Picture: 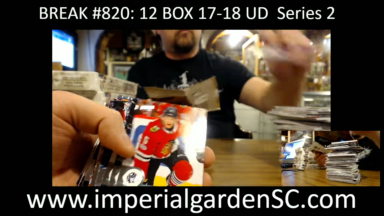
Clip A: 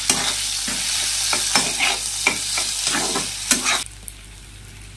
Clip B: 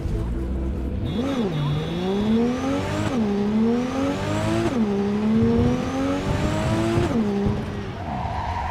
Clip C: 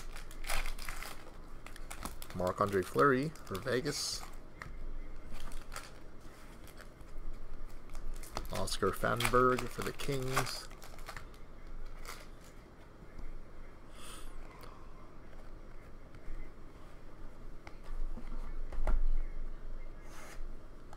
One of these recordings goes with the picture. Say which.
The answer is C